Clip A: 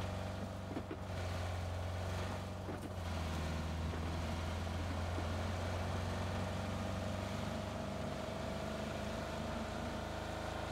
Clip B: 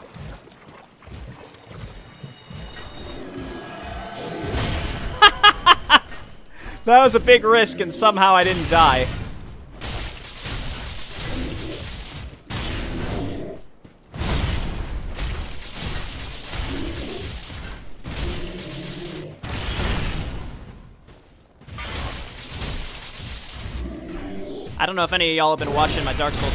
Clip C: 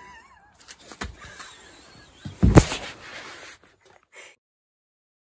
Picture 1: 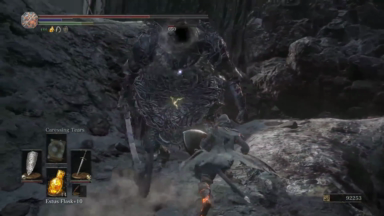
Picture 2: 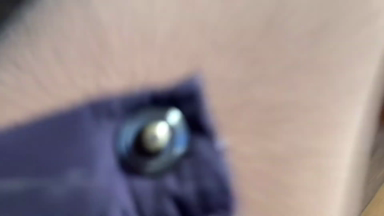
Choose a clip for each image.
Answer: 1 B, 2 C